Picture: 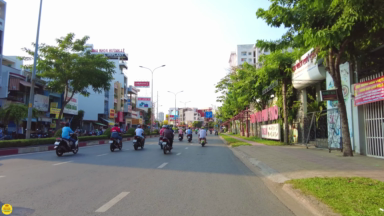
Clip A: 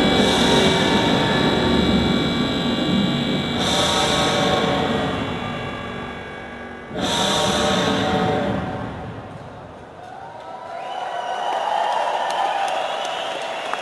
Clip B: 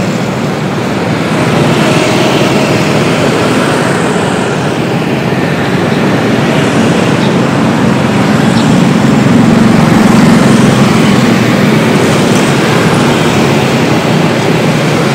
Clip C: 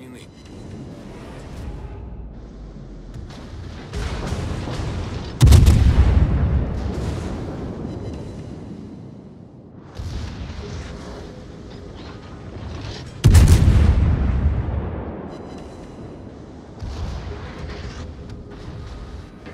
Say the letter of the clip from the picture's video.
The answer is B